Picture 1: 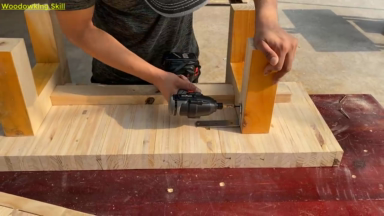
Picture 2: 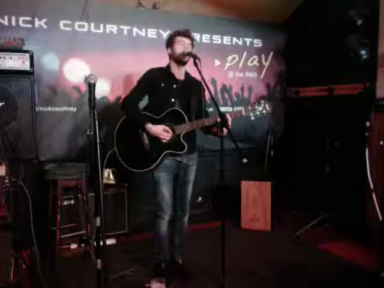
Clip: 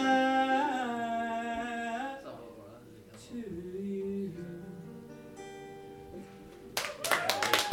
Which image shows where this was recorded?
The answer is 2